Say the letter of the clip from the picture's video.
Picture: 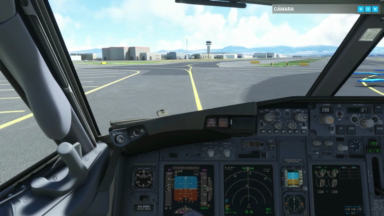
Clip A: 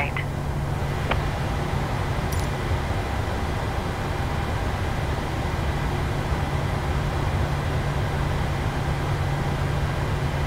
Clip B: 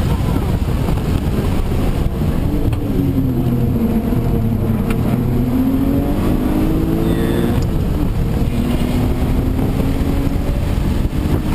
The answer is A